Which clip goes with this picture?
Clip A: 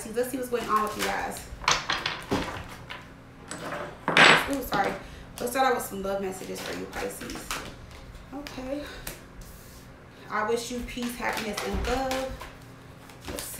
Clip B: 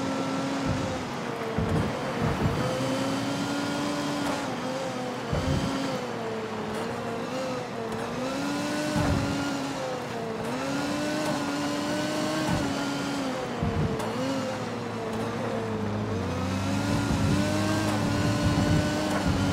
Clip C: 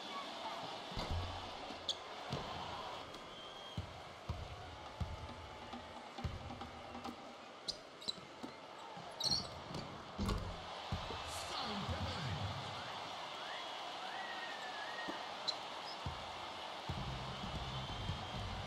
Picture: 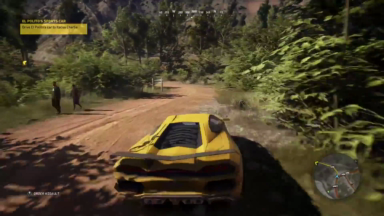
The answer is B